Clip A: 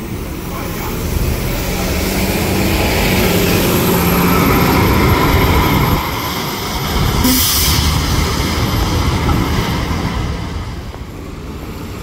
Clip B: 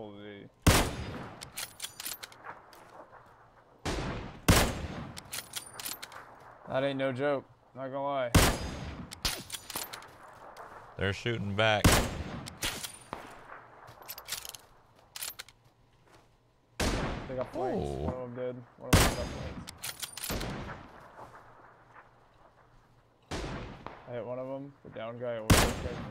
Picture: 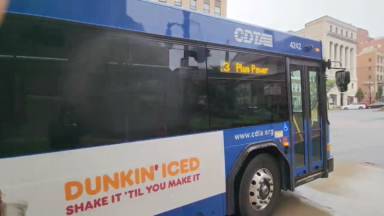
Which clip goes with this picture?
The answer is A